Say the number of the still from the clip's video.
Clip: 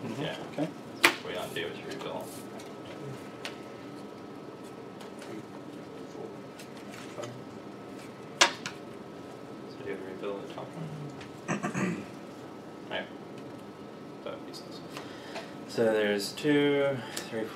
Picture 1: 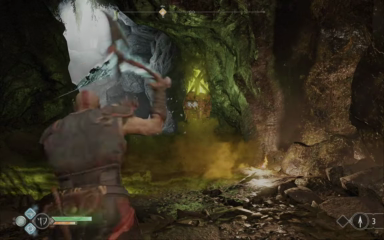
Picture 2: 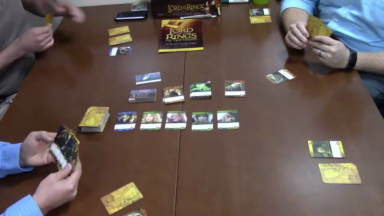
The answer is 2